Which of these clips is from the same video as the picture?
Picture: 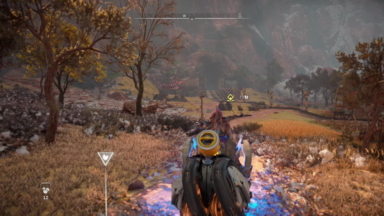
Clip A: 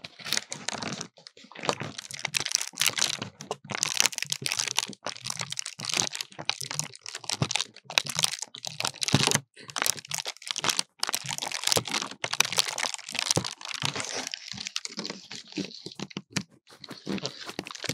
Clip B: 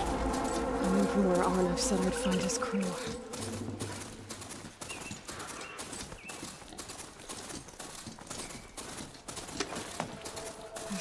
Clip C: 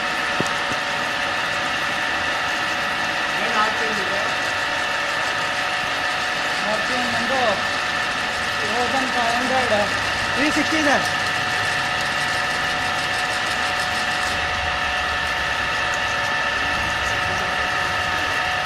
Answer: B